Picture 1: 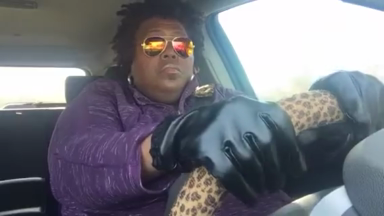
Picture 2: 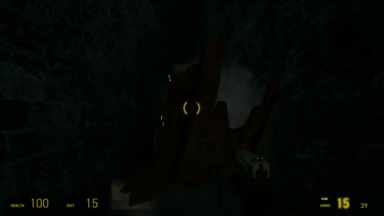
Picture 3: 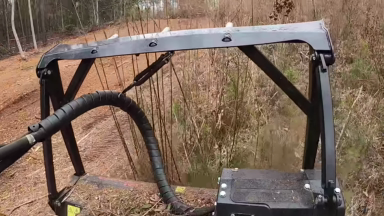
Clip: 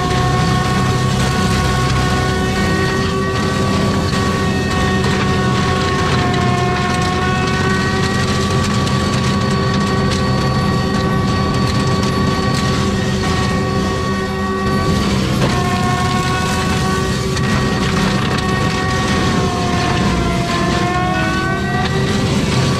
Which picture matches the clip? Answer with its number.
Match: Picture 3